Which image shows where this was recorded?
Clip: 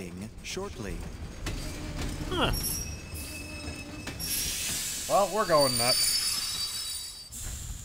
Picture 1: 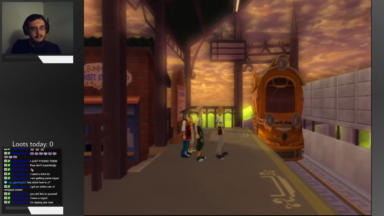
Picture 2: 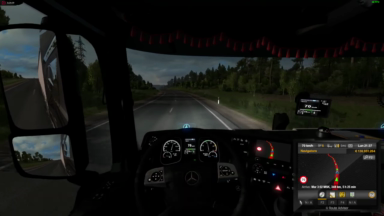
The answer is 1